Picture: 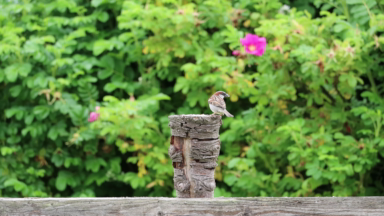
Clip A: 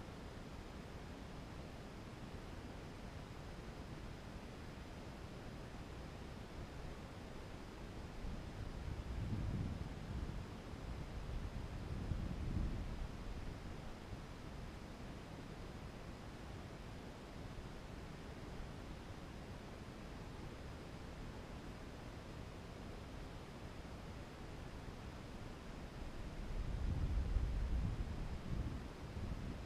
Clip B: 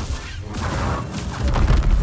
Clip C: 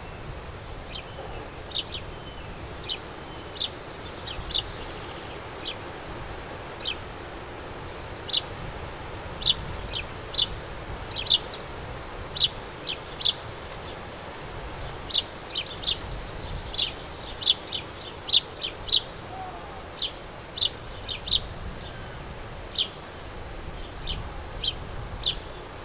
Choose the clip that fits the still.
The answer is C